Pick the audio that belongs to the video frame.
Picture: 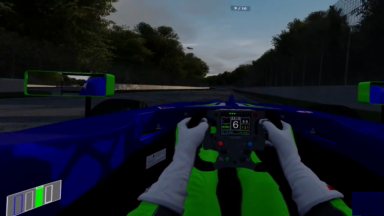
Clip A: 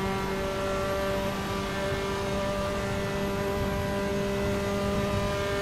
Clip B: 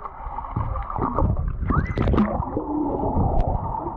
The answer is A